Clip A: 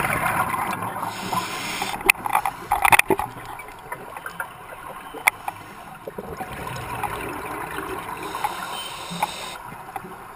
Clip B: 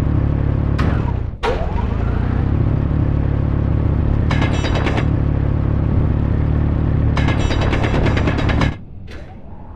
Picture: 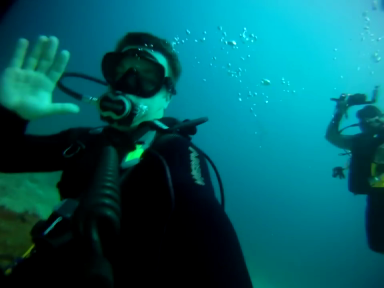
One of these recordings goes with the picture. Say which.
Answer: A